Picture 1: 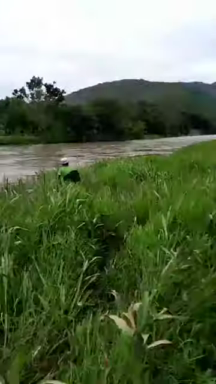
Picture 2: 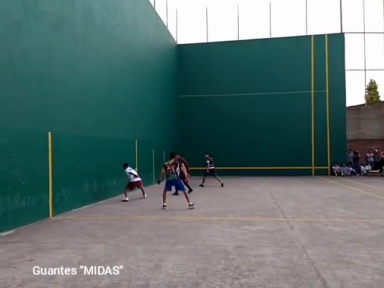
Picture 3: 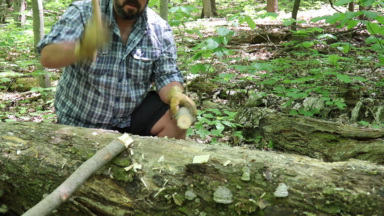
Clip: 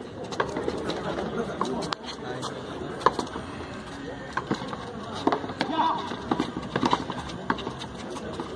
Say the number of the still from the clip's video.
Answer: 2